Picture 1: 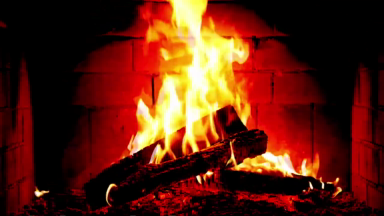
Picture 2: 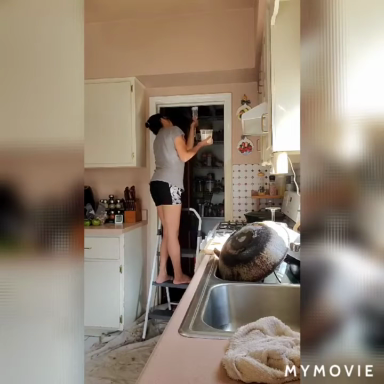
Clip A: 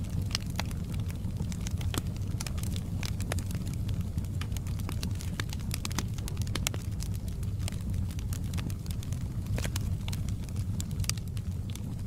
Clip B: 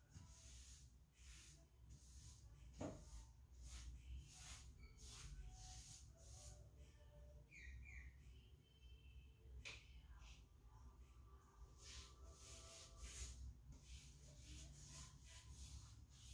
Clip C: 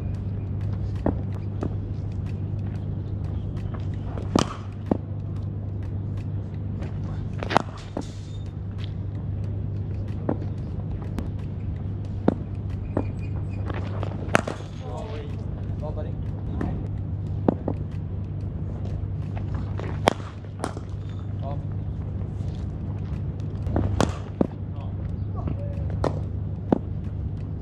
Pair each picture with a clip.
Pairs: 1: A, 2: B